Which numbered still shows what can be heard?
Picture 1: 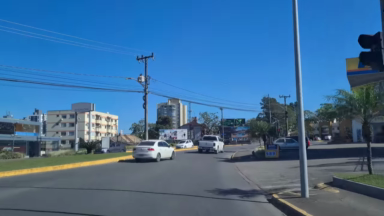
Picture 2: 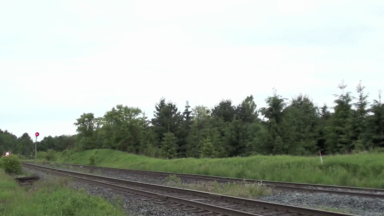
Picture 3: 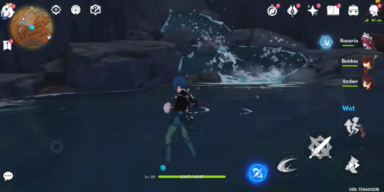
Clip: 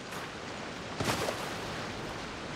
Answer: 3